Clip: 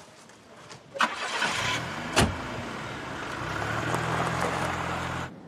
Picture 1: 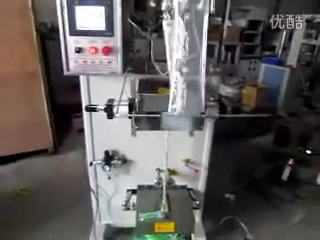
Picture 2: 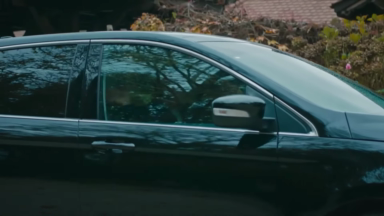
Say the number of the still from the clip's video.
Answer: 2